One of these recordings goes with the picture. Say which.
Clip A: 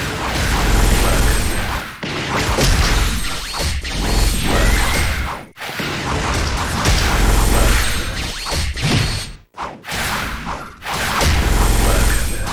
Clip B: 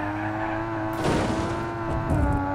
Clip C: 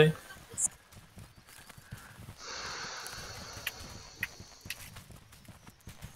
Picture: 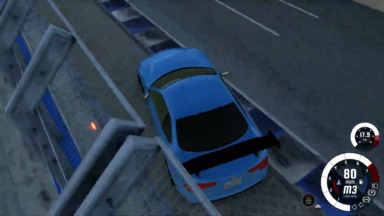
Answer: B